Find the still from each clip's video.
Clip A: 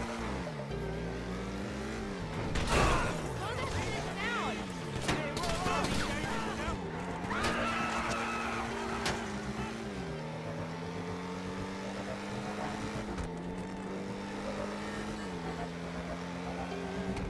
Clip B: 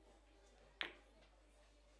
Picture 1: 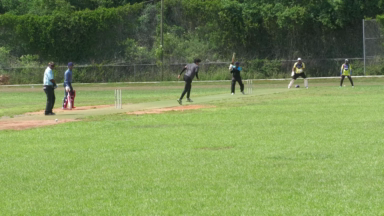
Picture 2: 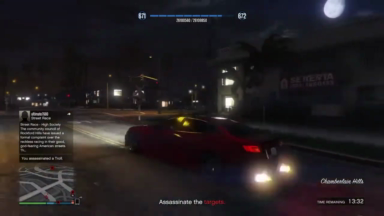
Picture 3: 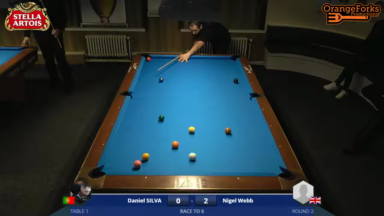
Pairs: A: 2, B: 3